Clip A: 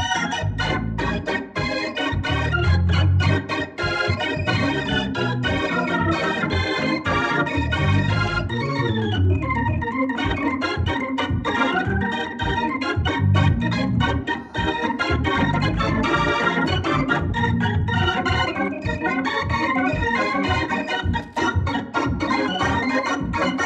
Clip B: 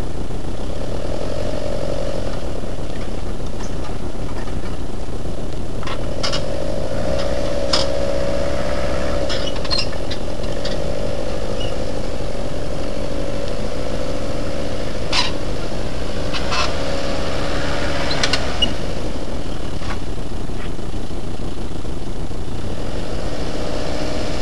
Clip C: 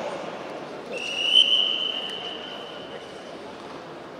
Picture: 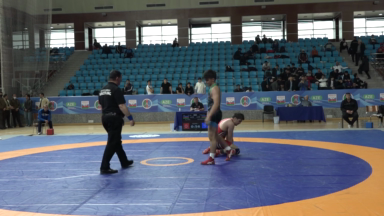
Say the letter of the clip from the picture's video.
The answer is C